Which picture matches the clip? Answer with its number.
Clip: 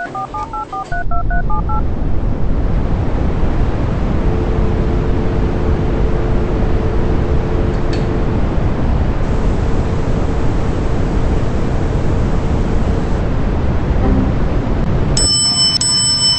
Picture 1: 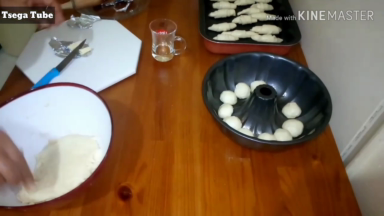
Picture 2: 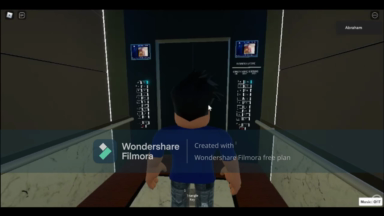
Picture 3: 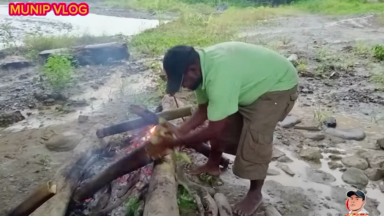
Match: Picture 2